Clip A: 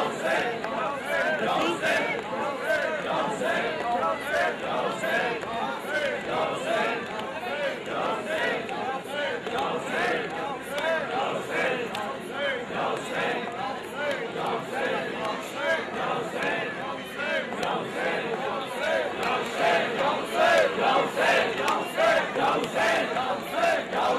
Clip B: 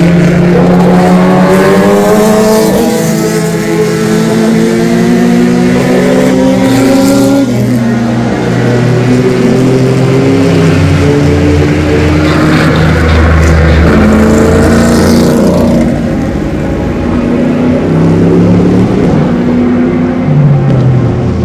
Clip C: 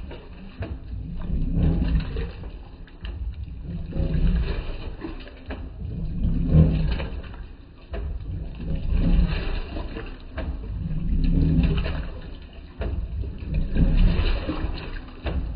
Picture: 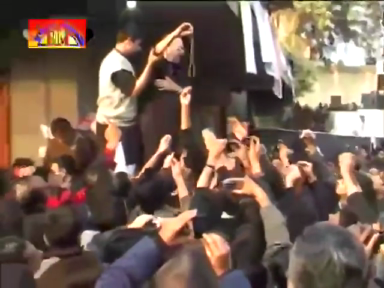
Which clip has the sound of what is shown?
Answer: A